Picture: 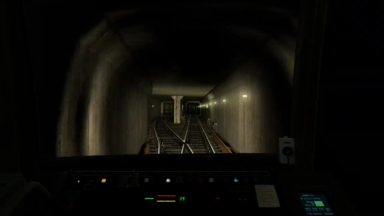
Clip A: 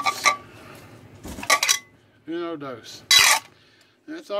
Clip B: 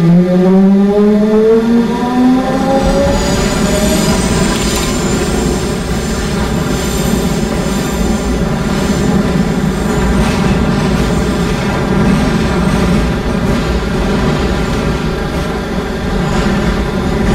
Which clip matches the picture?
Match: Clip B